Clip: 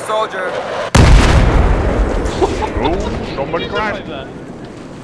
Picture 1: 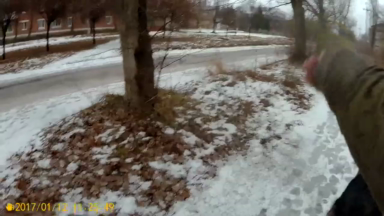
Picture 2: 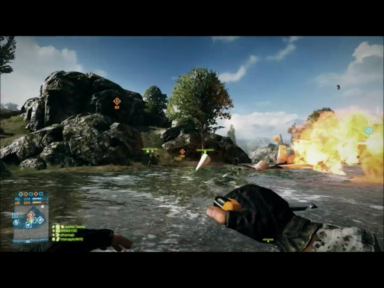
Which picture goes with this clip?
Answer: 2